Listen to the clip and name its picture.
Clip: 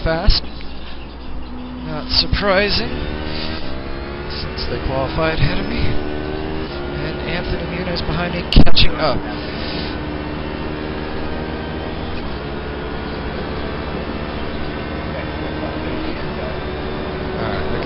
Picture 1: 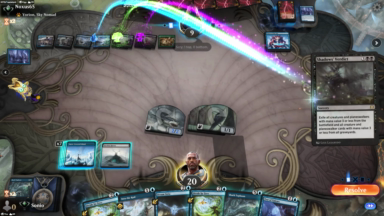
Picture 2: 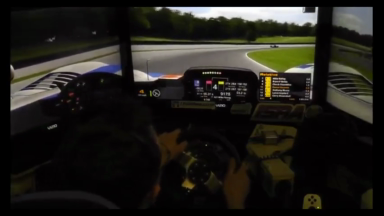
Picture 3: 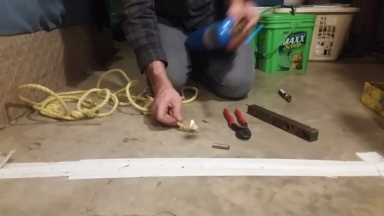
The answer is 2